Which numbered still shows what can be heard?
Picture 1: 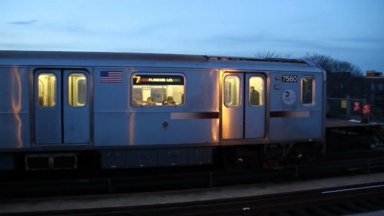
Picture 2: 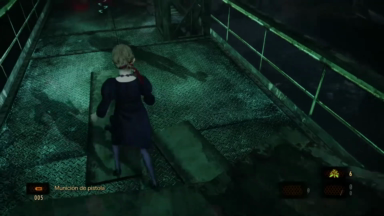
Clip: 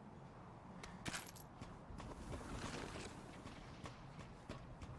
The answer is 2